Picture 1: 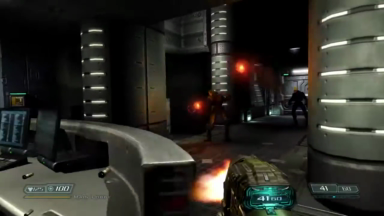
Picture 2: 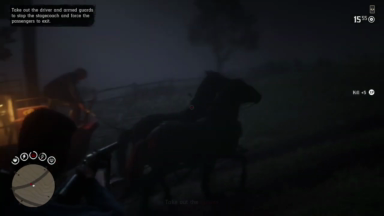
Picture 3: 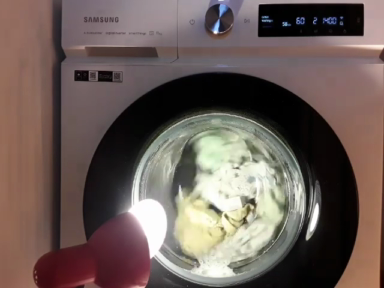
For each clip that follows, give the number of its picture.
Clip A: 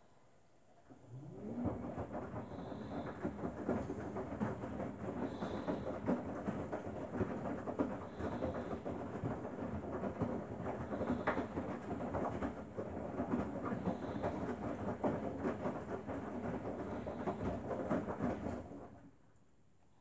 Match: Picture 3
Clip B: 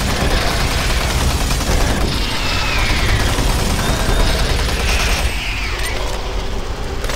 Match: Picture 1